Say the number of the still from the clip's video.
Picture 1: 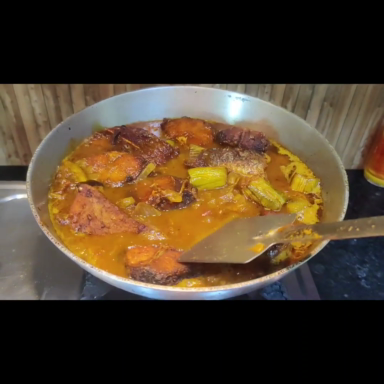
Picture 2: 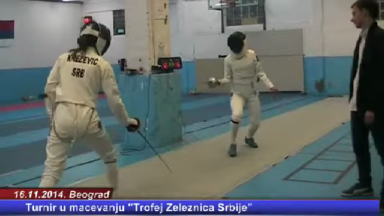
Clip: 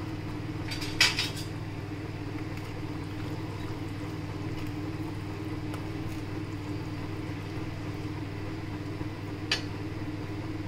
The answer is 1